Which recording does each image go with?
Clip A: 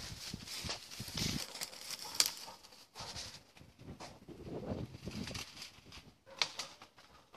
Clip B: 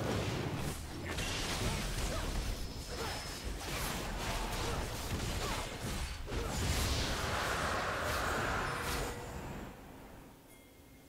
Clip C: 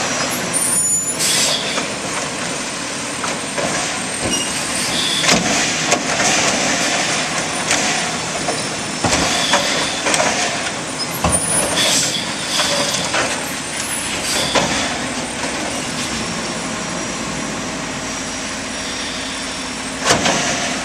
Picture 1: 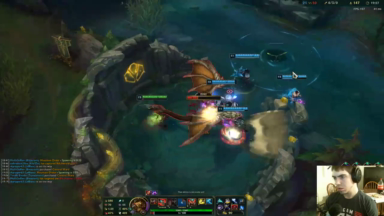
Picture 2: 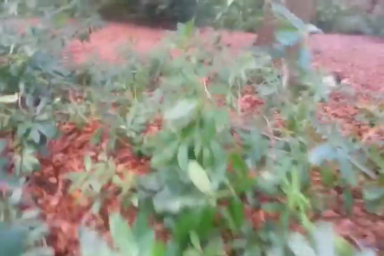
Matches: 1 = B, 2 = A